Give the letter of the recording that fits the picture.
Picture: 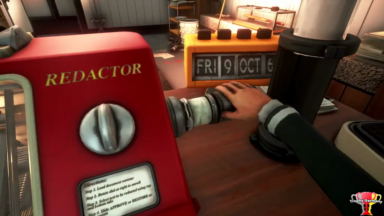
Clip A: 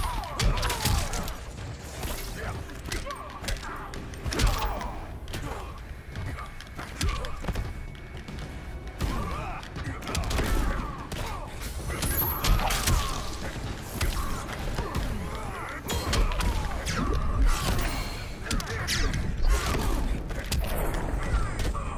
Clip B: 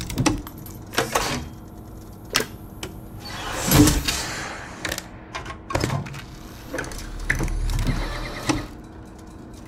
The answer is B